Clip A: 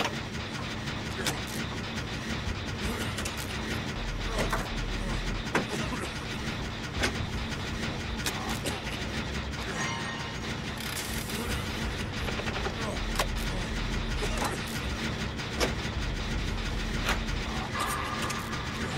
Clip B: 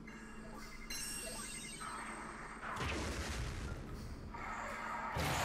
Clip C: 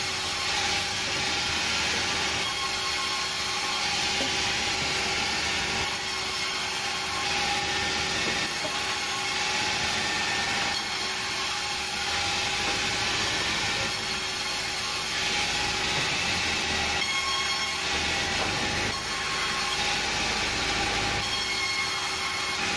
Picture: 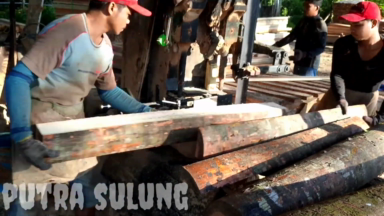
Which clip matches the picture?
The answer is C